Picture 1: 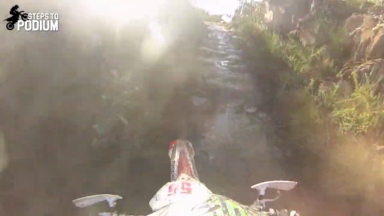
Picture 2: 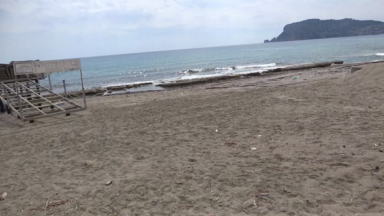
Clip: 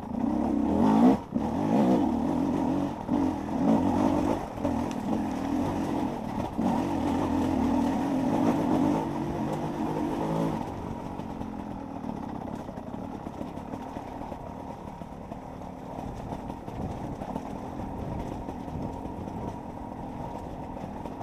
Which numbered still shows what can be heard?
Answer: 1